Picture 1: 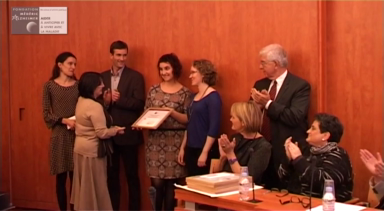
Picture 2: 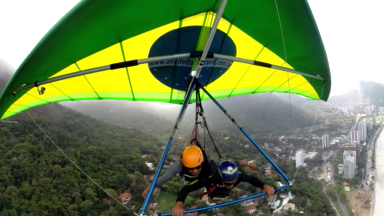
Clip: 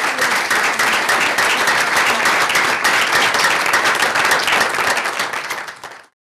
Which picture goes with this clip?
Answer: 1